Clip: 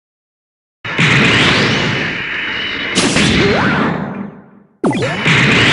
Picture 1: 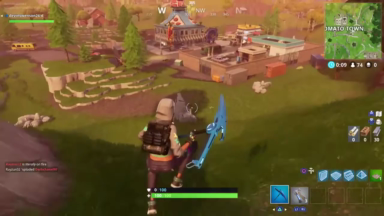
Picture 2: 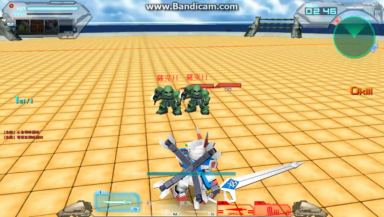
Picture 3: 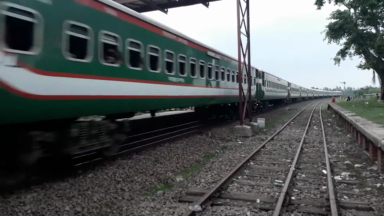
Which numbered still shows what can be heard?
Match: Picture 2